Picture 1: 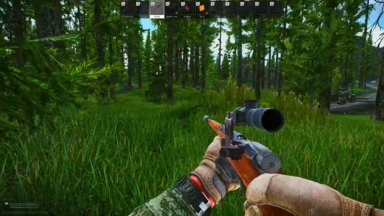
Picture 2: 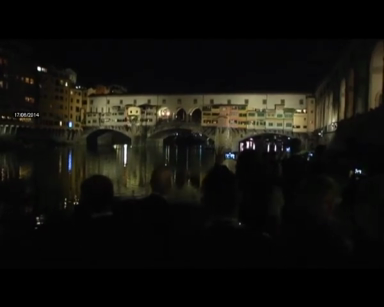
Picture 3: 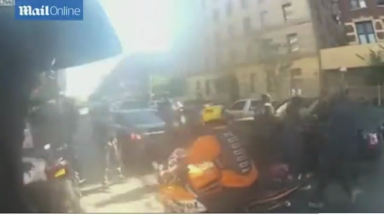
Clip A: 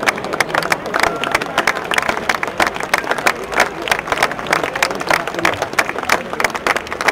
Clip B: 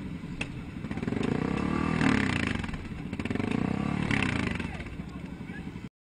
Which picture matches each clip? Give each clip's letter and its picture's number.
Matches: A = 2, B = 3